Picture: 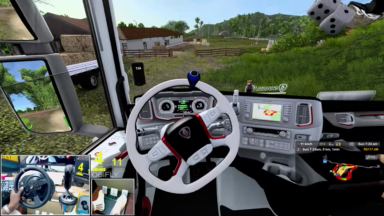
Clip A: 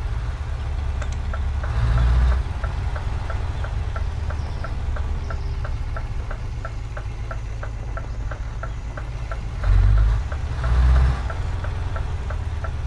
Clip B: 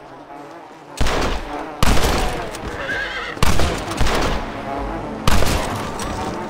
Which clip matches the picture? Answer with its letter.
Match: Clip A